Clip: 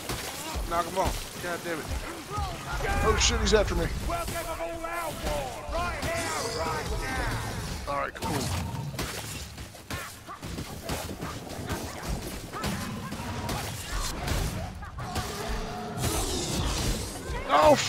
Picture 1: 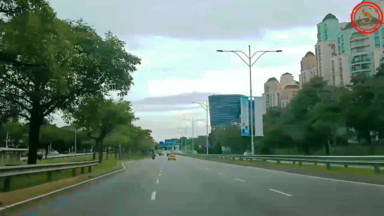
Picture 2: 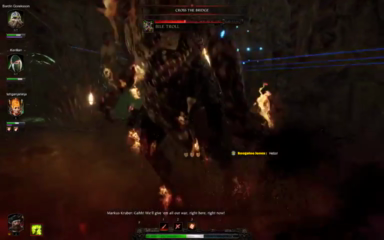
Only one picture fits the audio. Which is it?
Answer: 2